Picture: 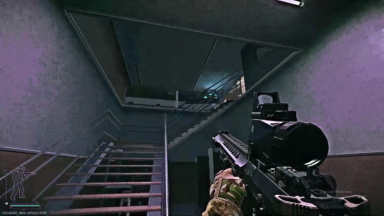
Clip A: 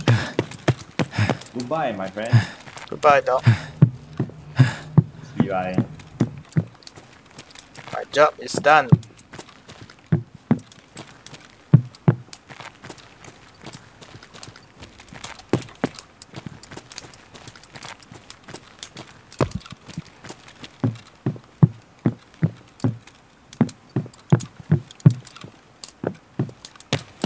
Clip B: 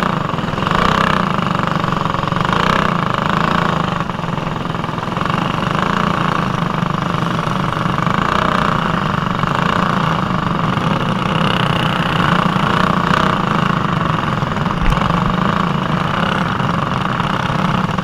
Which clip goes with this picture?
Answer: A